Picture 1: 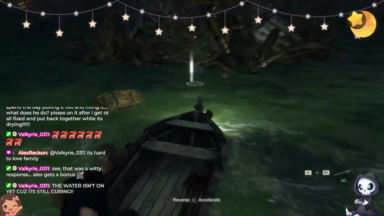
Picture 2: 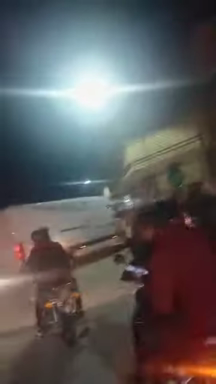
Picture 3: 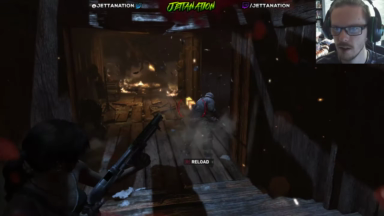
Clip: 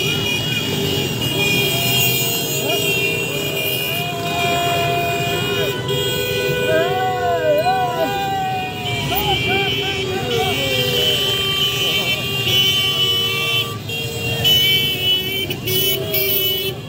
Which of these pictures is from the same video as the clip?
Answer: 2